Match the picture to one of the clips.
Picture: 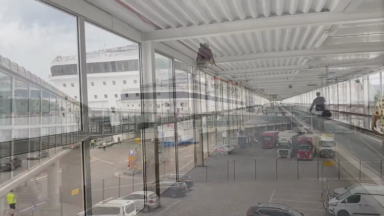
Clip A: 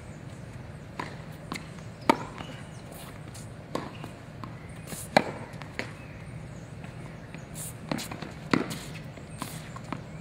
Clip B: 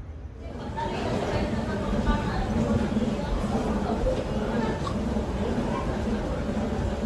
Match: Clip B